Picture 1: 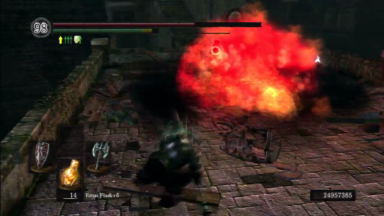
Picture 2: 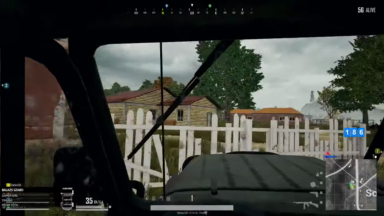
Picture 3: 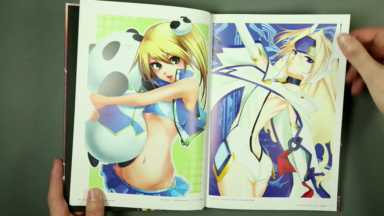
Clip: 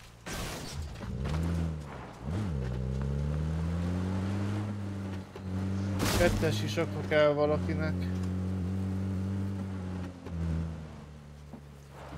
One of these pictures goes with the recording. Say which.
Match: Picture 2